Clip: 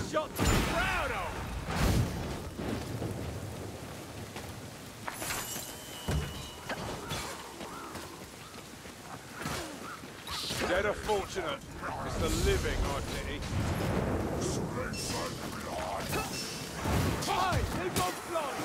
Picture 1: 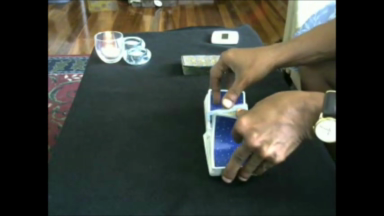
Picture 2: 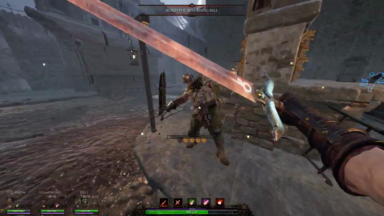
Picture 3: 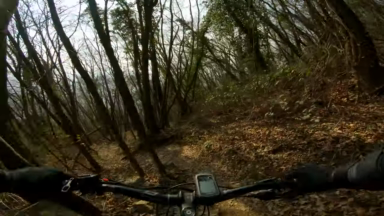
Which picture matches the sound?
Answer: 2